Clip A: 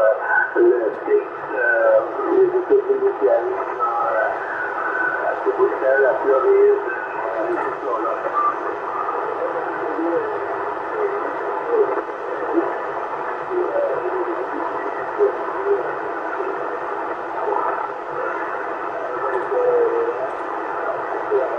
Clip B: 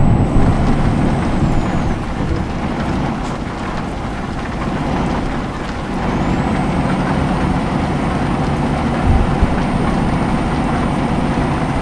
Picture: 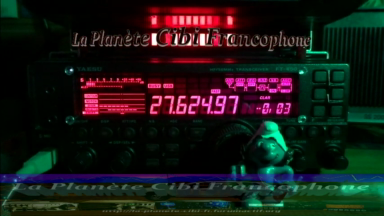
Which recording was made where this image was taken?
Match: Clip A